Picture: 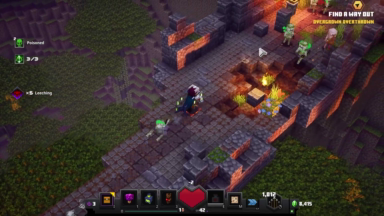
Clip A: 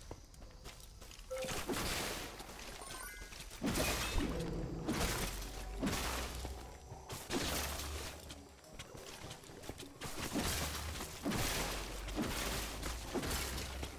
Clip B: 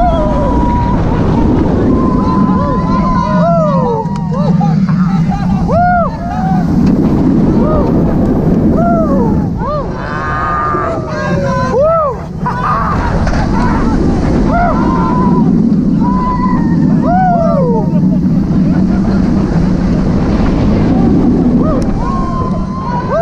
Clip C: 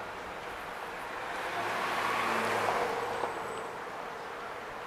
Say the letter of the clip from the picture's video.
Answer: A